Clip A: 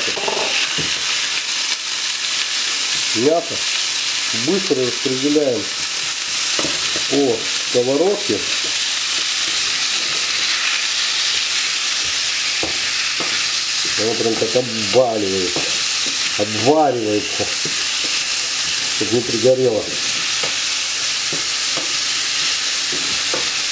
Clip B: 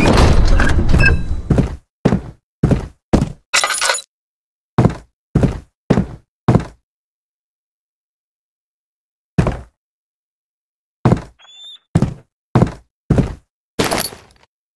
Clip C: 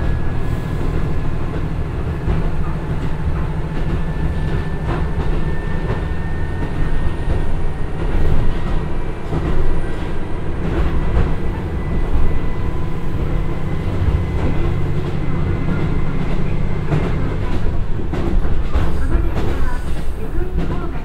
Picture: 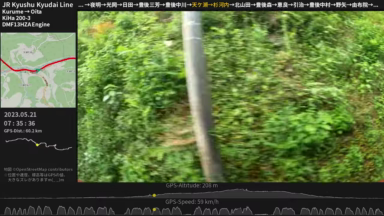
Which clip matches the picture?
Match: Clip C